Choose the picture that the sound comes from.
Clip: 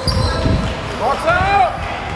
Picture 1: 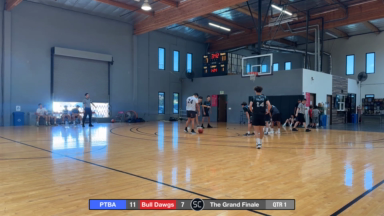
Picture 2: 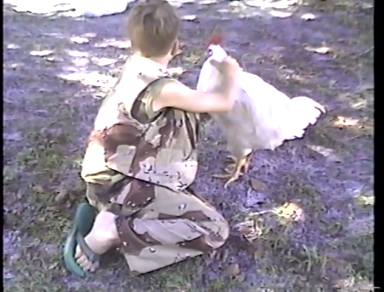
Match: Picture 1